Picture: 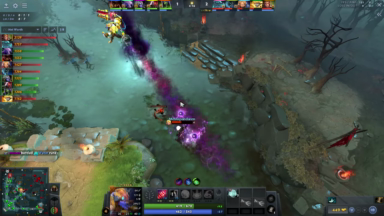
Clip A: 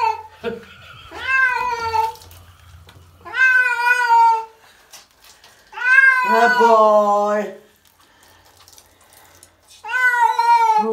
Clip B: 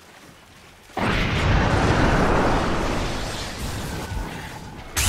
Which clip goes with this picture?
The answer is B